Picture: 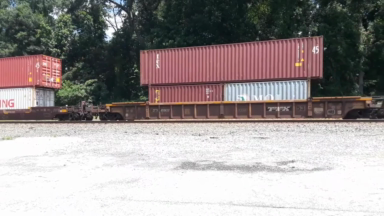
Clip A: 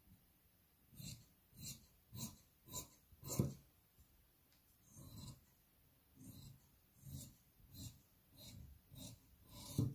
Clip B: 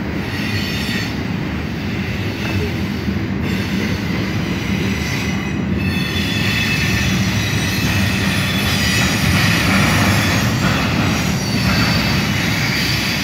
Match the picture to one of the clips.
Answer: B